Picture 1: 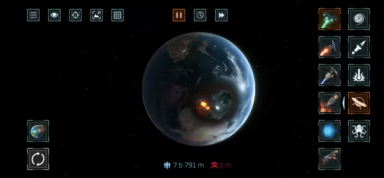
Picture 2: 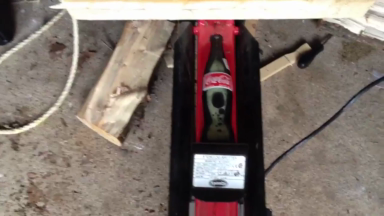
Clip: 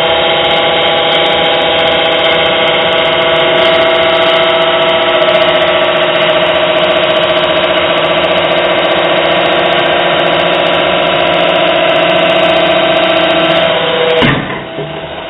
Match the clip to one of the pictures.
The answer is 2